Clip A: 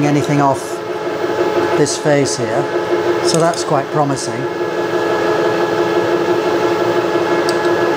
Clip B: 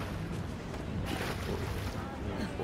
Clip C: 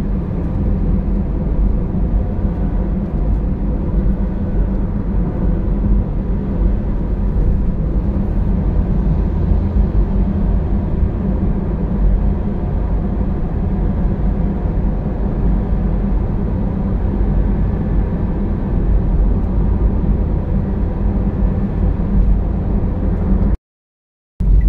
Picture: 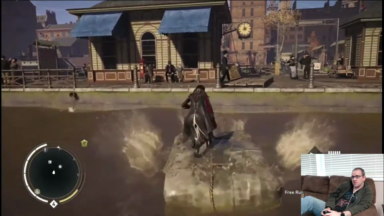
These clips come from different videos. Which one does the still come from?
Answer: B